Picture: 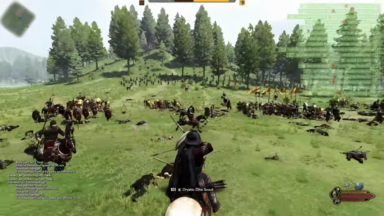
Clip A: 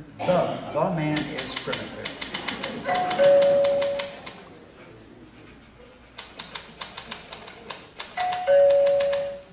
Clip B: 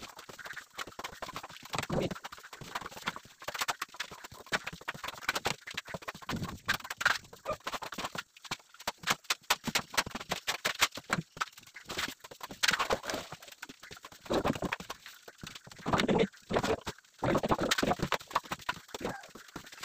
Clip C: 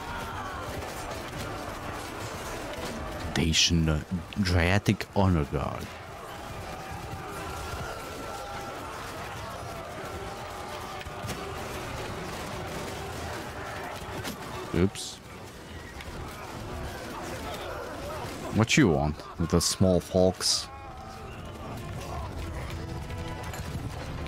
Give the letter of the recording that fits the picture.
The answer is C